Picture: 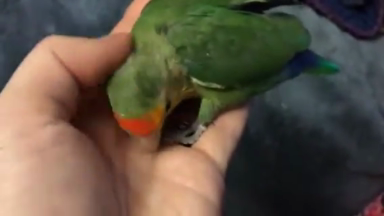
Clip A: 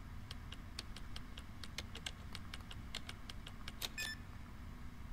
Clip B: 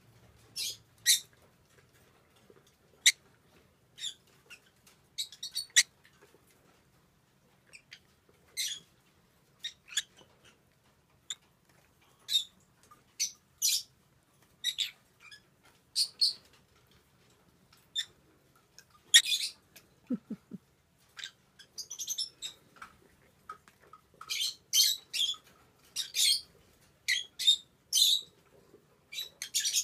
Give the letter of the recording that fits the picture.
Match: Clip B